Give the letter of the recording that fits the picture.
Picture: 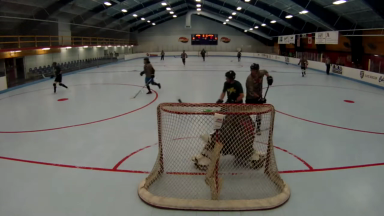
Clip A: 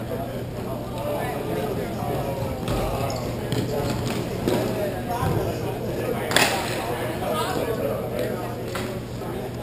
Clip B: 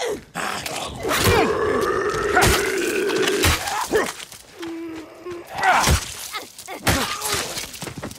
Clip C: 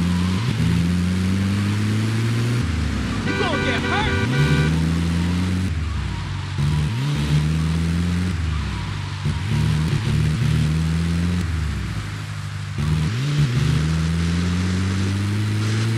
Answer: A